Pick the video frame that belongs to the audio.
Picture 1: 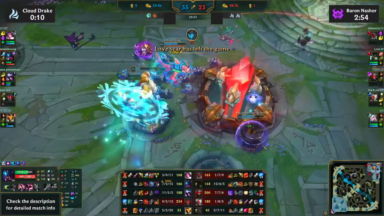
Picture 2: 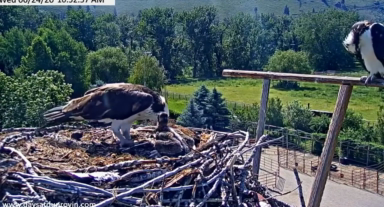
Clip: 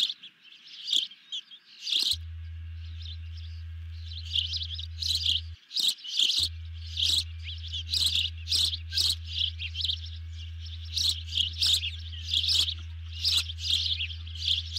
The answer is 2